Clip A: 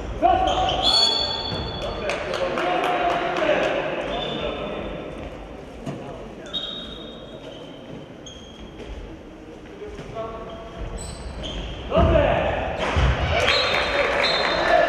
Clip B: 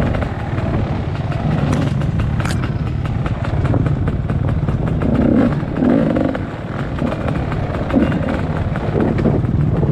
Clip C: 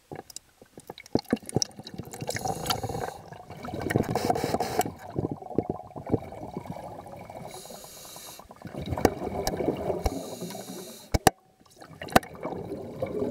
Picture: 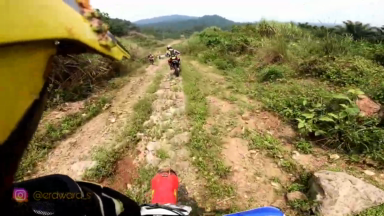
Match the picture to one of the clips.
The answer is B